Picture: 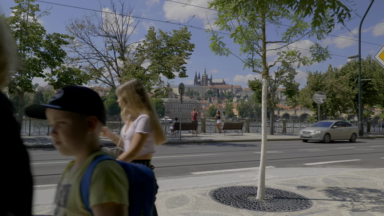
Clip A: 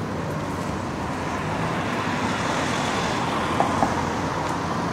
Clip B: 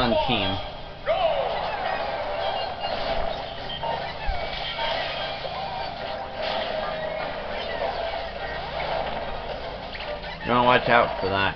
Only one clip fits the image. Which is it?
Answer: A